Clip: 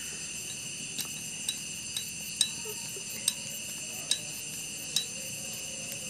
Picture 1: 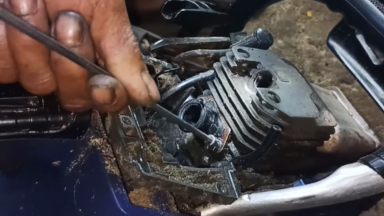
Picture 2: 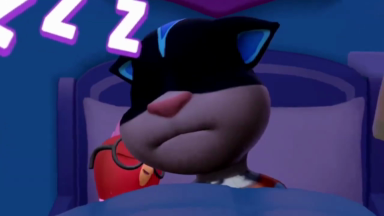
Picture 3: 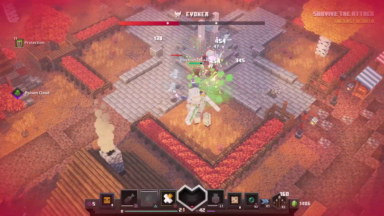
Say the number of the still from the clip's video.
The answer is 1